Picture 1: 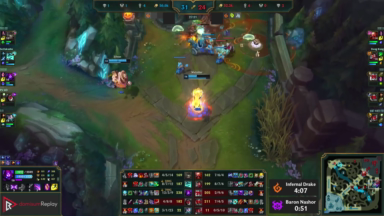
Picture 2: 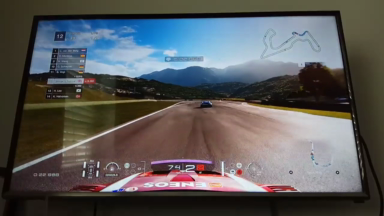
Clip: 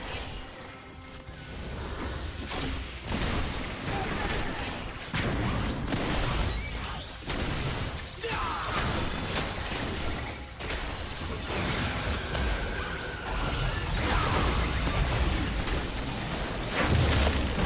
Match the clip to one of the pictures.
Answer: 1